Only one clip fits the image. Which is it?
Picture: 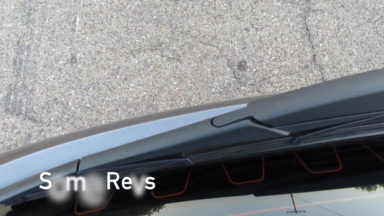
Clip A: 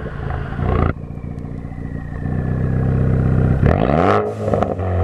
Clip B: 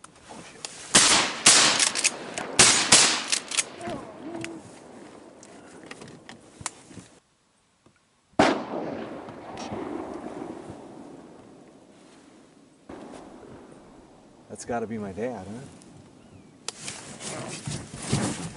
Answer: A